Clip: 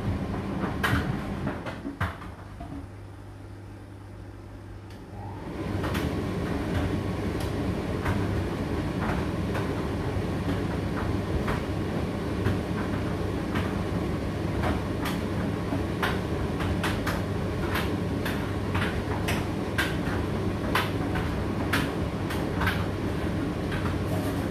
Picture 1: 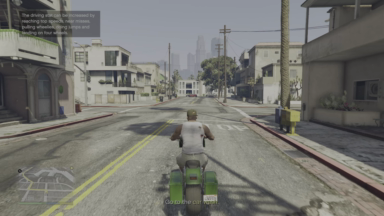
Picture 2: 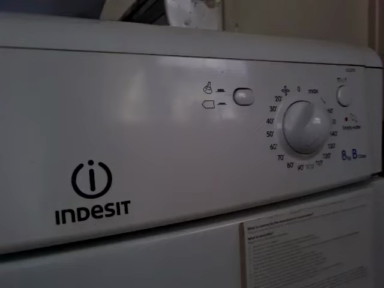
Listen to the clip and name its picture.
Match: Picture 2